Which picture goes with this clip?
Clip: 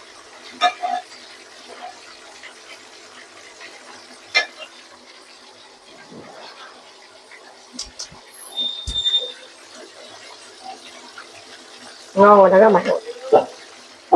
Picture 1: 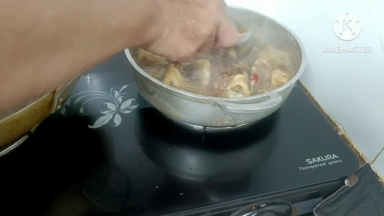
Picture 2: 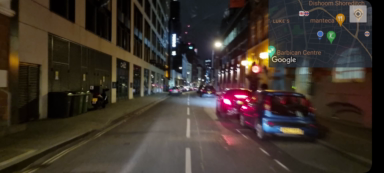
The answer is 1